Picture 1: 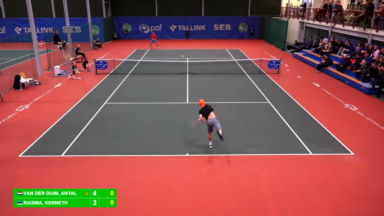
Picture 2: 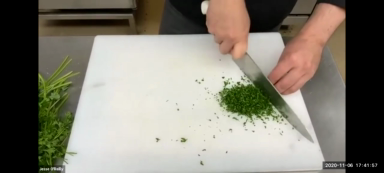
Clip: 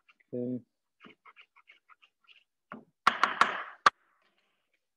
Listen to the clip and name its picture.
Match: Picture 2